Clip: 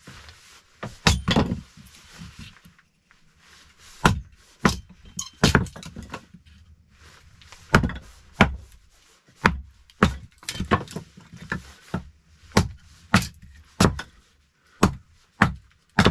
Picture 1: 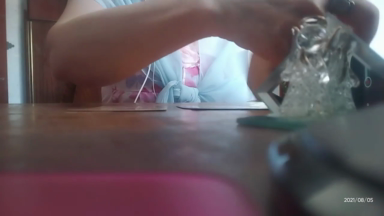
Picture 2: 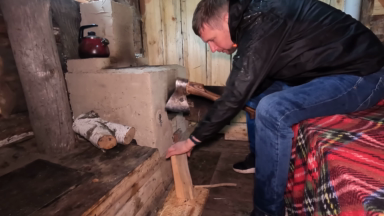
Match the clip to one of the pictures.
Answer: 2